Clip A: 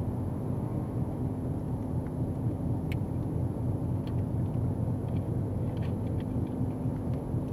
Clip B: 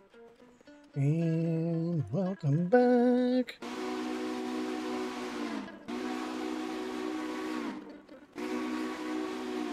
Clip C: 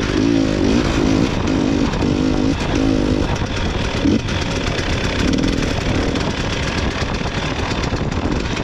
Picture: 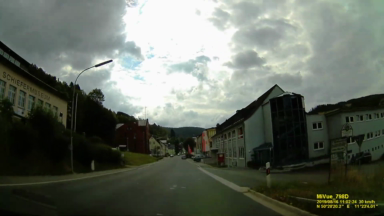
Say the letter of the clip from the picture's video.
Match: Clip A